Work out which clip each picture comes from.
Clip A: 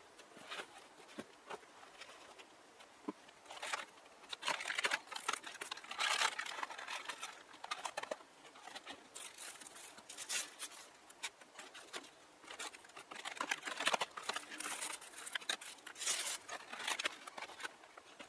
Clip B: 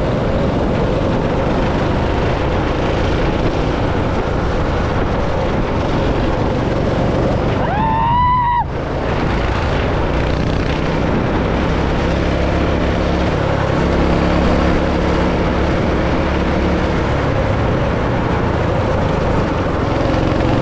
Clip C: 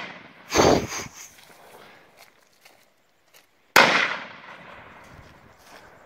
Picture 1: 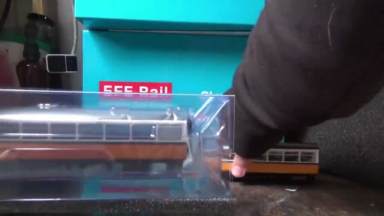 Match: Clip A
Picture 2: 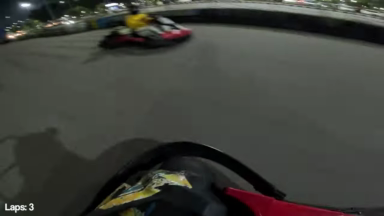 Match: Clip B